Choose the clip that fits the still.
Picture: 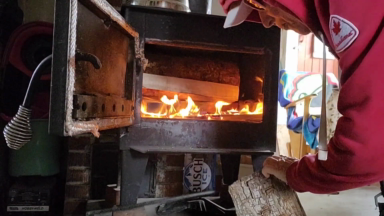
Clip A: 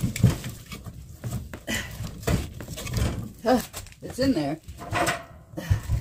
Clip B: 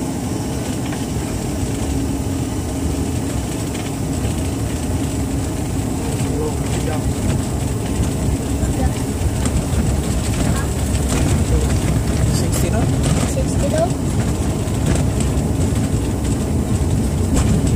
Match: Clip A